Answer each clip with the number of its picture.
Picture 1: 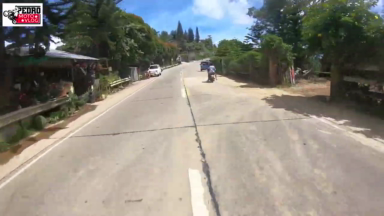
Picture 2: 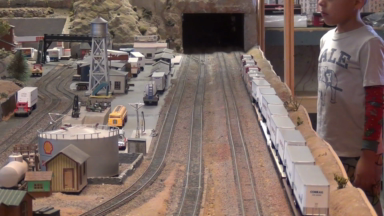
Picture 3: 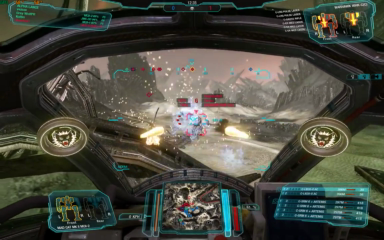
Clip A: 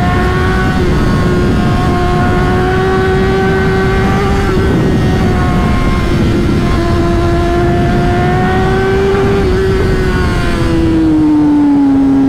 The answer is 1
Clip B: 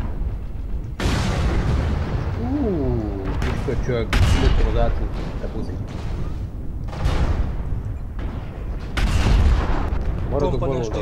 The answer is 3